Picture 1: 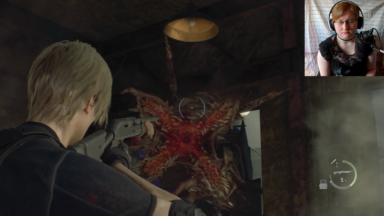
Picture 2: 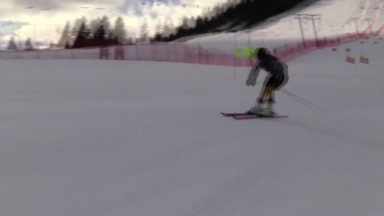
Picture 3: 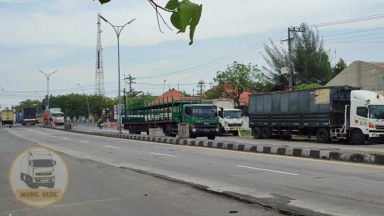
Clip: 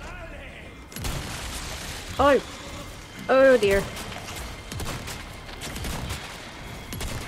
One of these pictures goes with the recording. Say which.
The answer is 1